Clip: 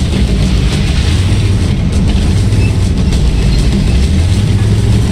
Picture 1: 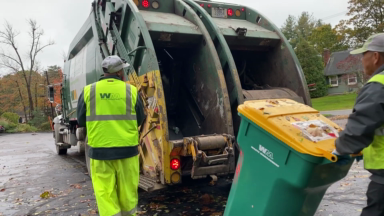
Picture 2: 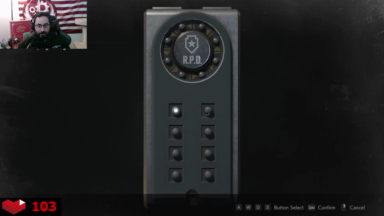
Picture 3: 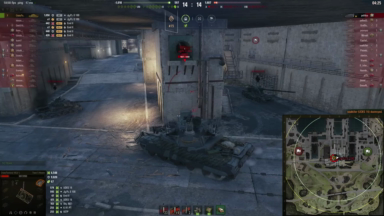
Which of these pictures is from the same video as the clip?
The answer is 3